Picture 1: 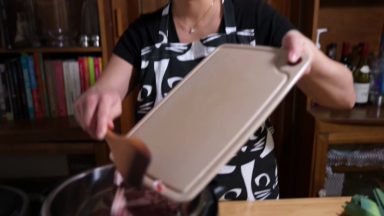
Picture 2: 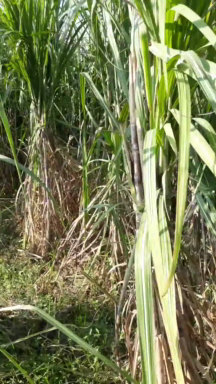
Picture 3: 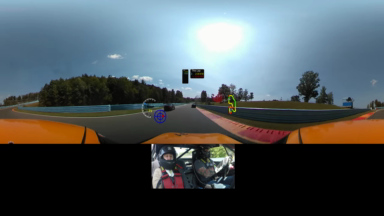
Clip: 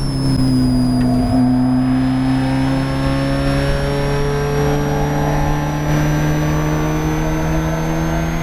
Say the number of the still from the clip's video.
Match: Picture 3